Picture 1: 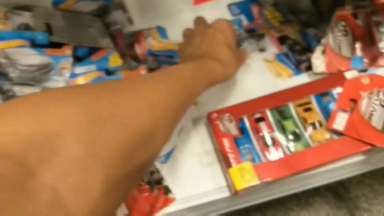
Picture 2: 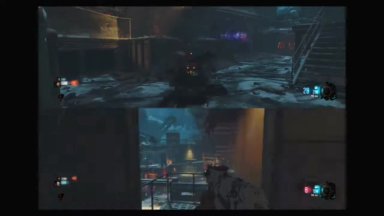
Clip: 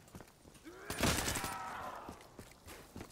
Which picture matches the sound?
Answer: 2